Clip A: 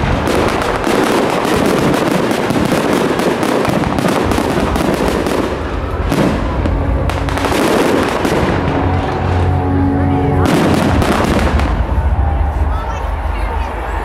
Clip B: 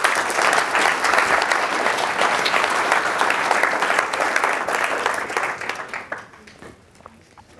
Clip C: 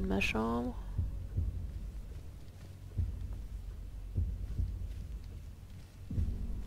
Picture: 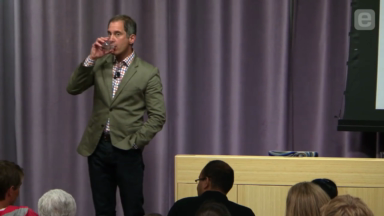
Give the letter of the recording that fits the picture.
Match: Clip B